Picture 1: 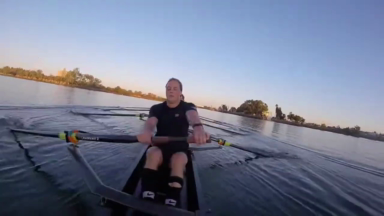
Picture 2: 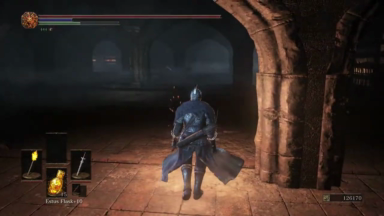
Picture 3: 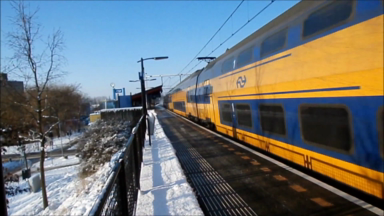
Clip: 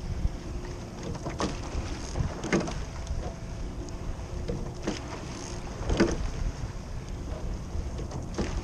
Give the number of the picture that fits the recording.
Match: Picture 1